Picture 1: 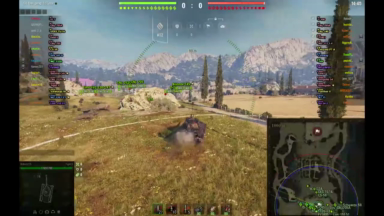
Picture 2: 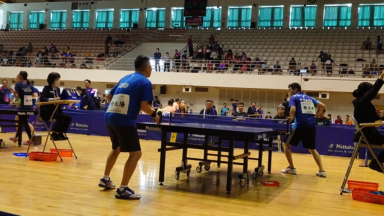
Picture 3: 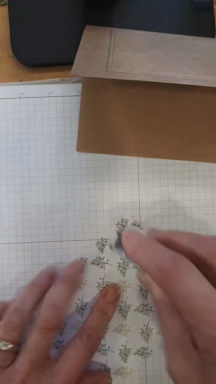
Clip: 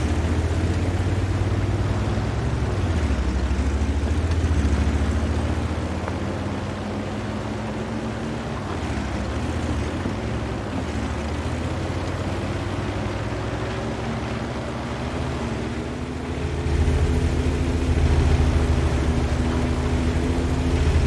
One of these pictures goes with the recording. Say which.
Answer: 1